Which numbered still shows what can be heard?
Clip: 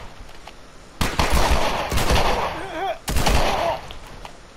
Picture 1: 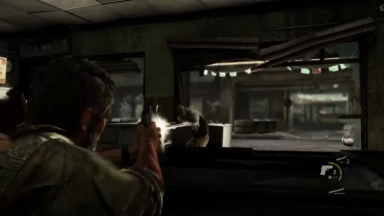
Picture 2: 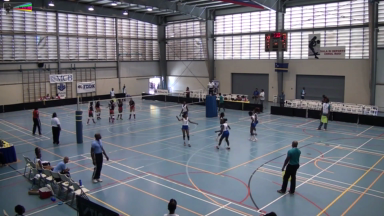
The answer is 1